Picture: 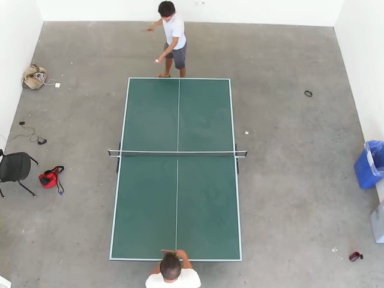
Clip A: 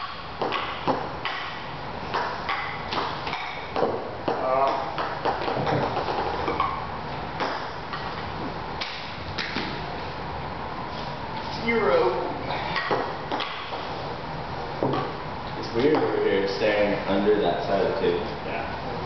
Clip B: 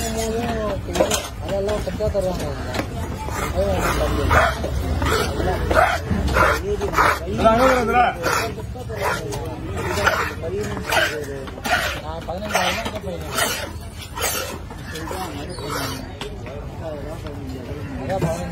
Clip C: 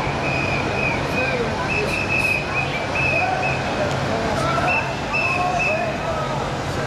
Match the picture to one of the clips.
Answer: A